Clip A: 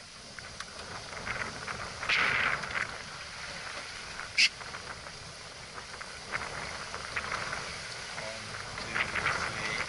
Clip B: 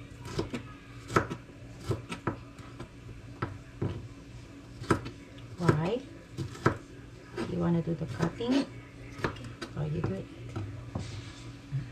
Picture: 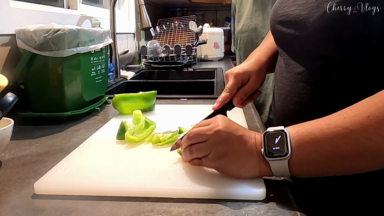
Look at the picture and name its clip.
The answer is B